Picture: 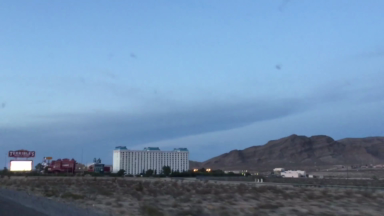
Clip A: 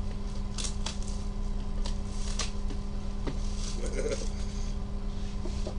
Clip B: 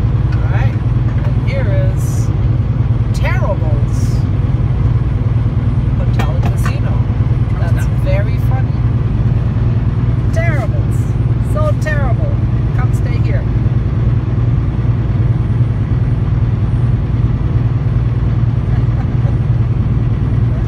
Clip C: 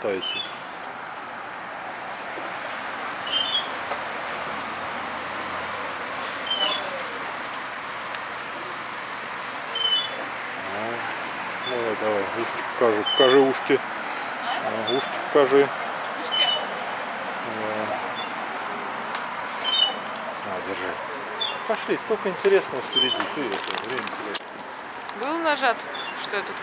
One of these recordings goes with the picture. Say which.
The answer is B